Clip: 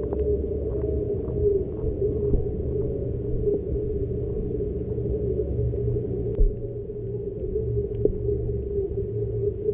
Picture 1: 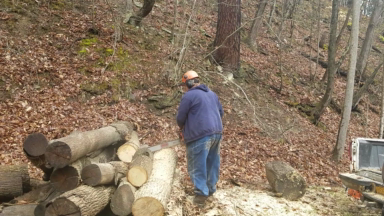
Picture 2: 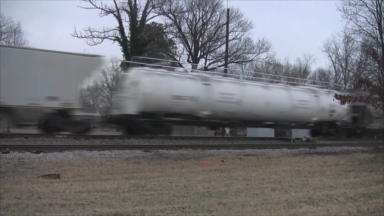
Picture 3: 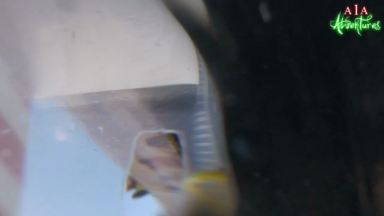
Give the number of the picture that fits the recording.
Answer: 3